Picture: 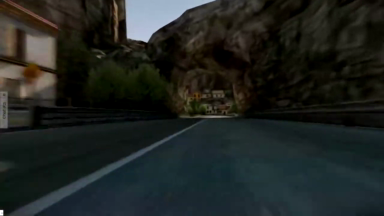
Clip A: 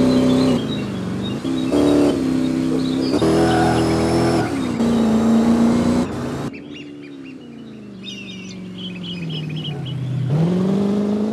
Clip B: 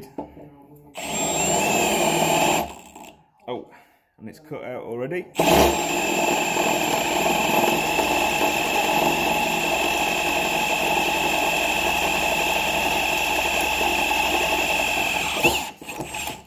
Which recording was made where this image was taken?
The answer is A